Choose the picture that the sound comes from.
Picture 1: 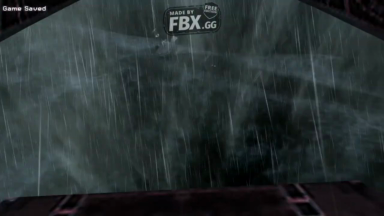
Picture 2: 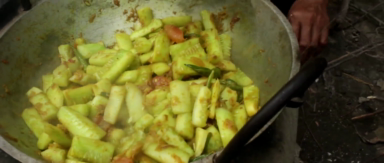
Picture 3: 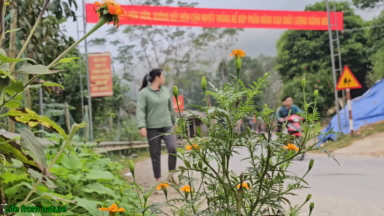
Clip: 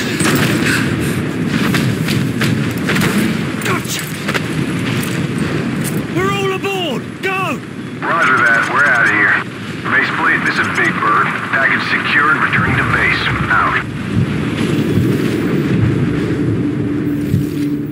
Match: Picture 1